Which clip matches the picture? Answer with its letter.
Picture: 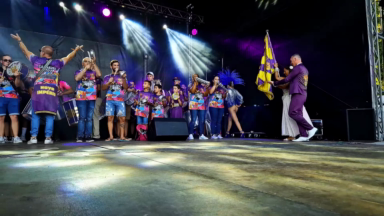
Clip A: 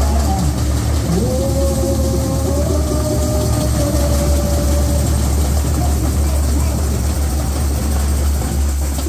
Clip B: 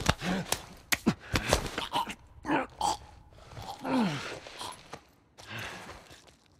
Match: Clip A